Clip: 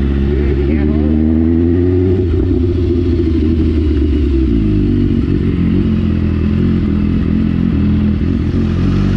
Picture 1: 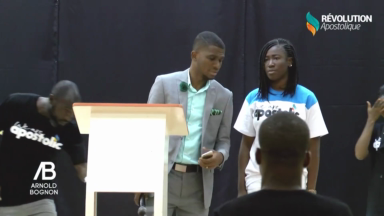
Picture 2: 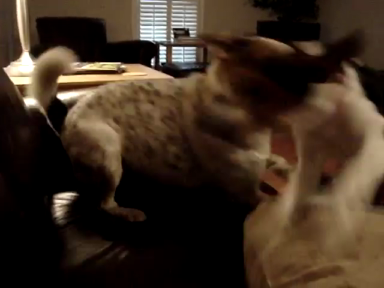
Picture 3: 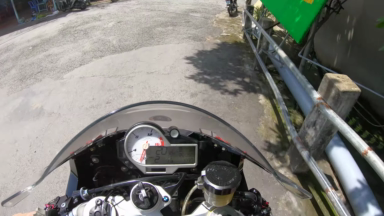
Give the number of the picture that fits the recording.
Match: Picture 3